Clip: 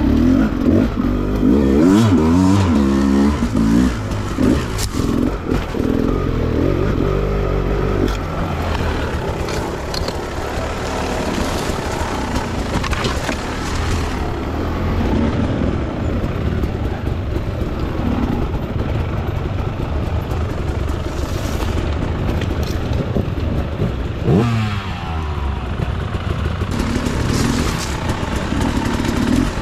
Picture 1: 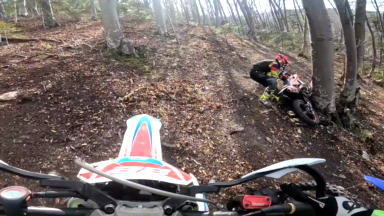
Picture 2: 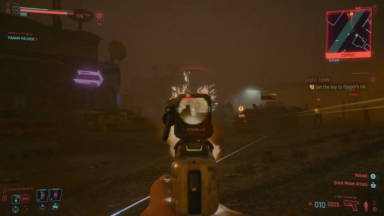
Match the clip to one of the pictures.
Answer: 1